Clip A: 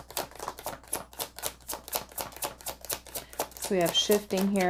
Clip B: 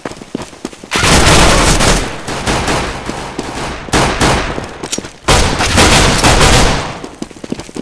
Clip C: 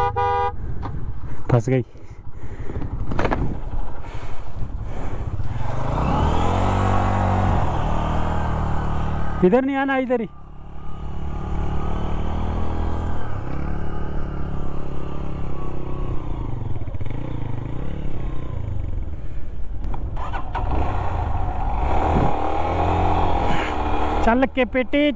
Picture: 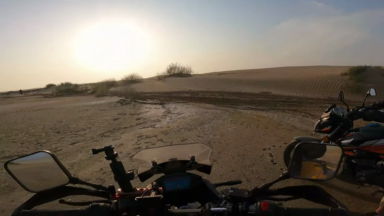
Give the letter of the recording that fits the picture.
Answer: C